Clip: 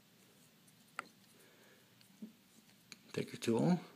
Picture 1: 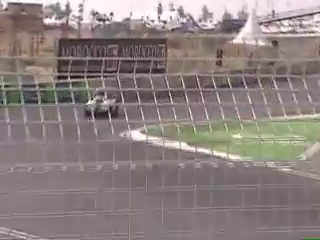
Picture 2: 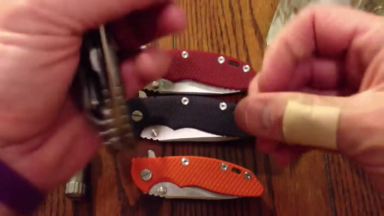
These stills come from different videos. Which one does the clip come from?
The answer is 2